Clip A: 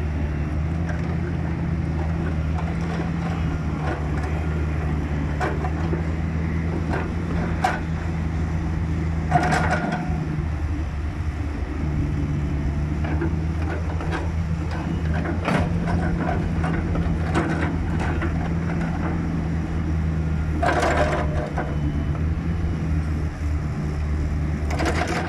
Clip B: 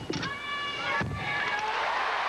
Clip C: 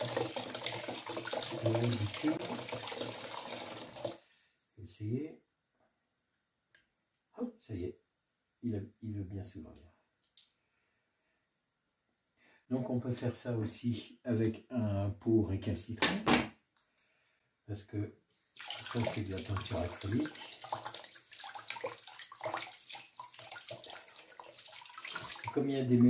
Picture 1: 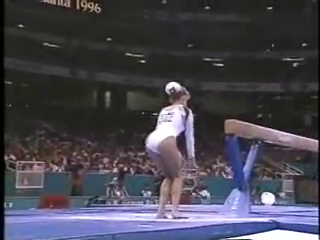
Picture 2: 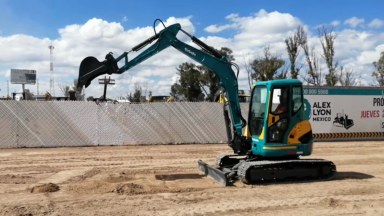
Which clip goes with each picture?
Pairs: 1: B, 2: A